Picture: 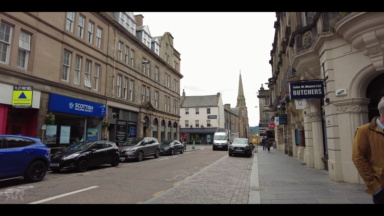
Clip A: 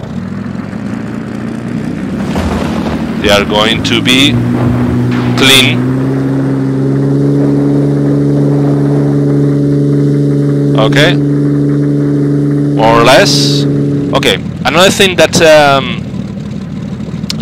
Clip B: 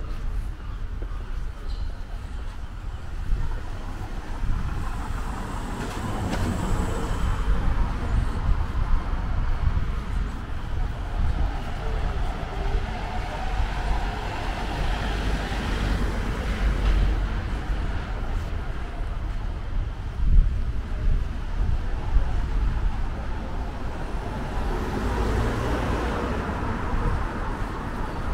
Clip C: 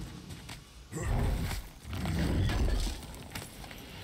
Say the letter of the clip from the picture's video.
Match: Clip B